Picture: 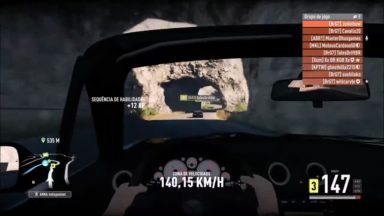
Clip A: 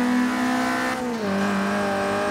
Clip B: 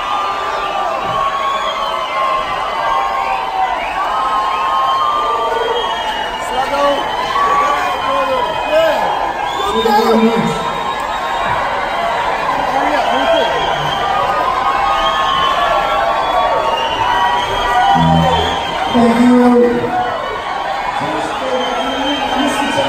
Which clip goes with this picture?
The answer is A